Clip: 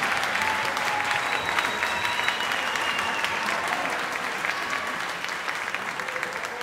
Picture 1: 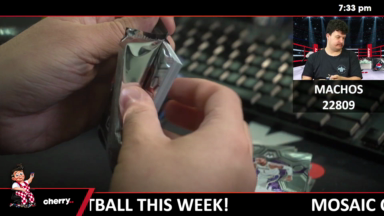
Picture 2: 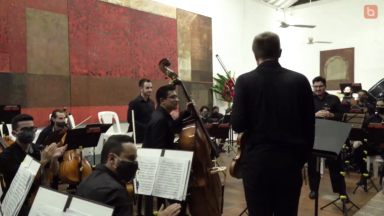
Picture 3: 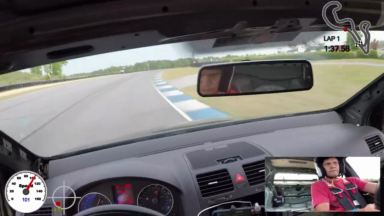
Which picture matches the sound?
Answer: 2